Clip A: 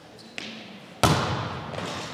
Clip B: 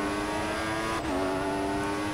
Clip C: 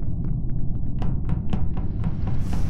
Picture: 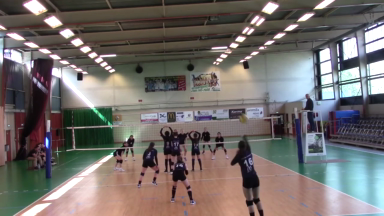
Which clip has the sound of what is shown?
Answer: A